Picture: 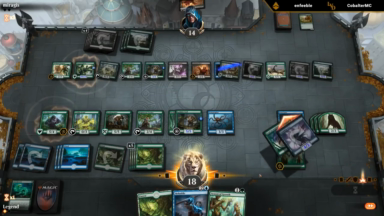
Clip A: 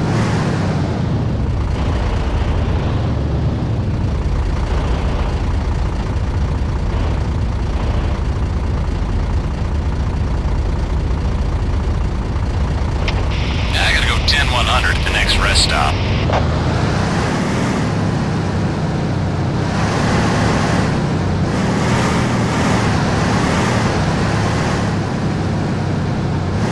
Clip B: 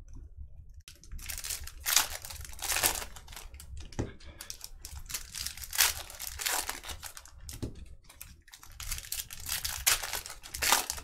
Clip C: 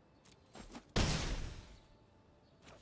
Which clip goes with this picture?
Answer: C